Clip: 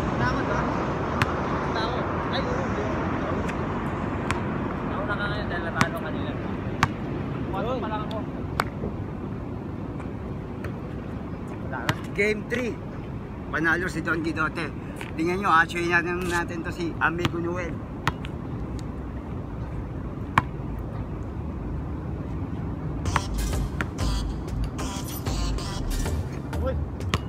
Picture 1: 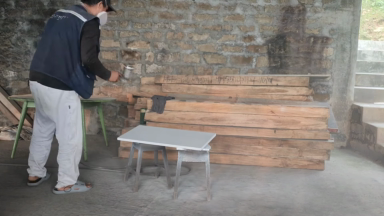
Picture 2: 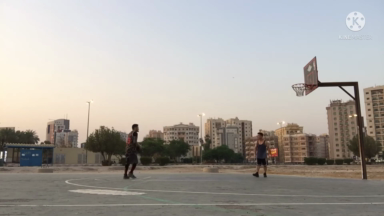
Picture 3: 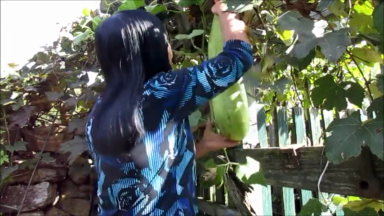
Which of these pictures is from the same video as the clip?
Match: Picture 2